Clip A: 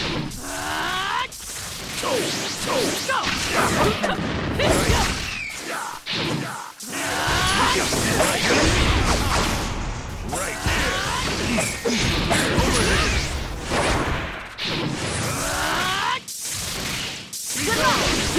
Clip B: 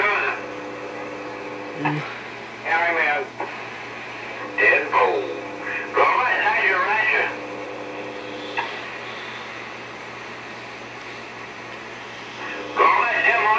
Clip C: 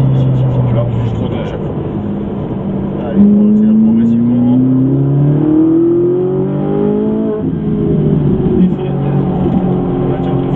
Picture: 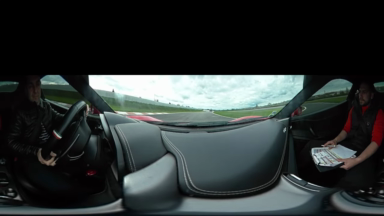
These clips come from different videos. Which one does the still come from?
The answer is C